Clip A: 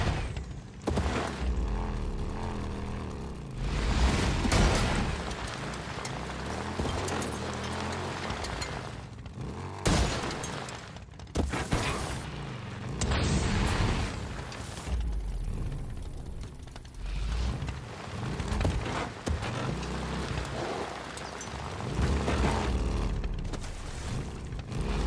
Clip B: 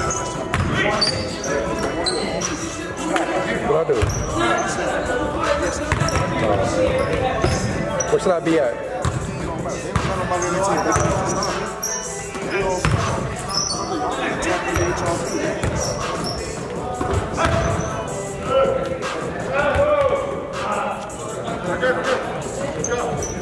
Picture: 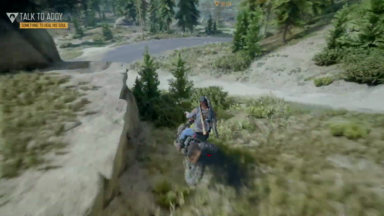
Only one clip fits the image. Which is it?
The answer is A